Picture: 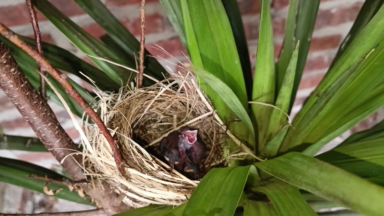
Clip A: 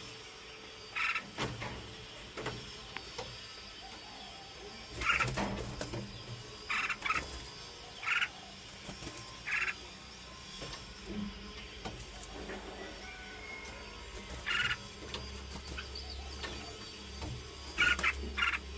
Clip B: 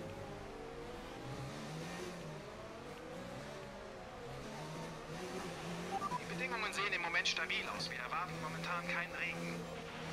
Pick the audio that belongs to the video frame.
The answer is A